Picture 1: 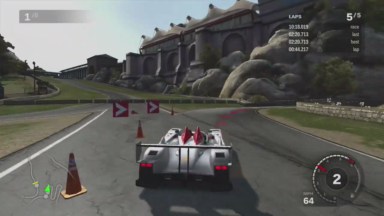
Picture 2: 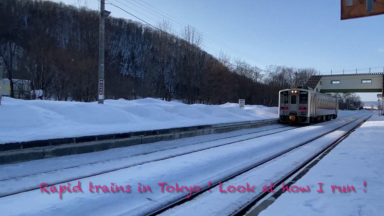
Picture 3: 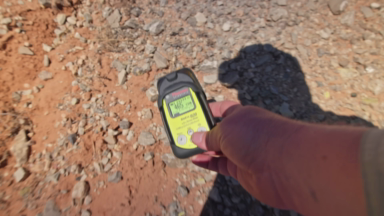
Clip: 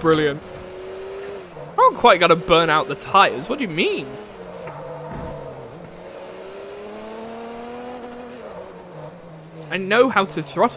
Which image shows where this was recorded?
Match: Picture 1